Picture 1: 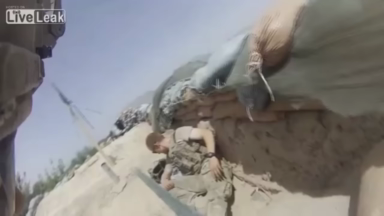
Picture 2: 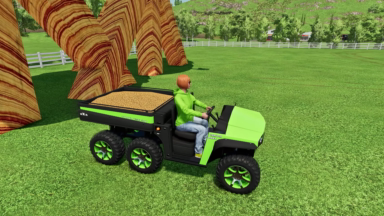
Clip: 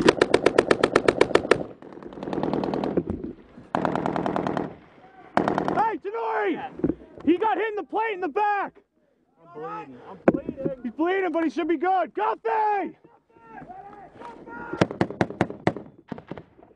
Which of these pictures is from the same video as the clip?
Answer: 1